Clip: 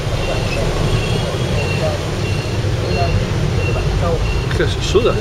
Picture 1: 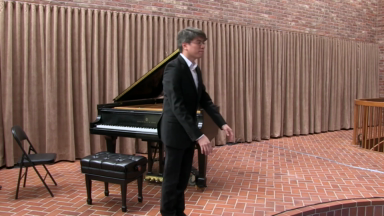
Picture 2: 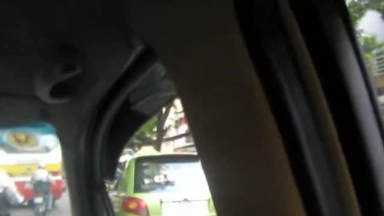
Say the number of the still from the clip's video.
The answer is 2